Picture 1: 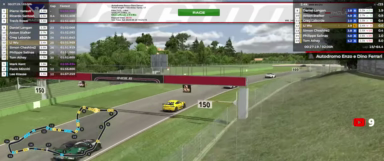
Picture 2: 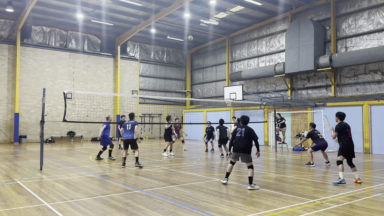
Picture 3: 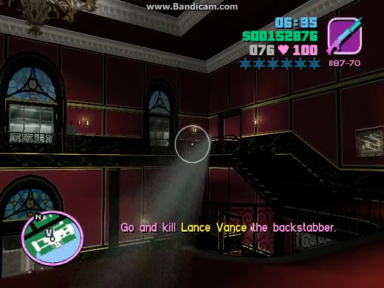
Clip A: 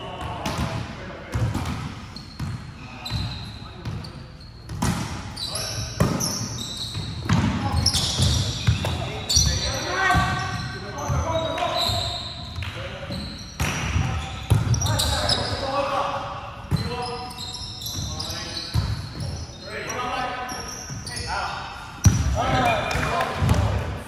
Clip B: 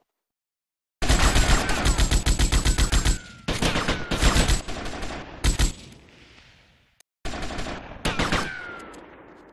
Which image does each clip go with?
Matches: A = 2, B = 3